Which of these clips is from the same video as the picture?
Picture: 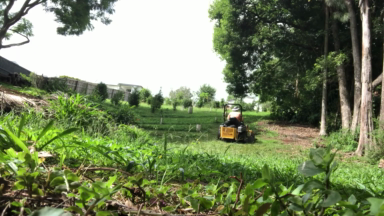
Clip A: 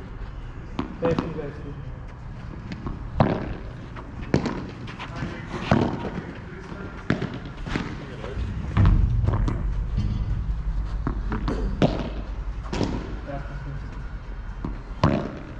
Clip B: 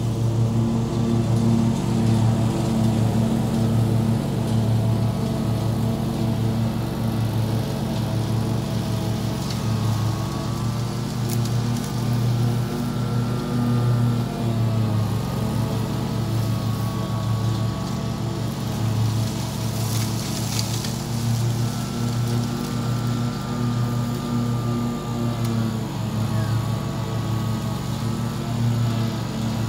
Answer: B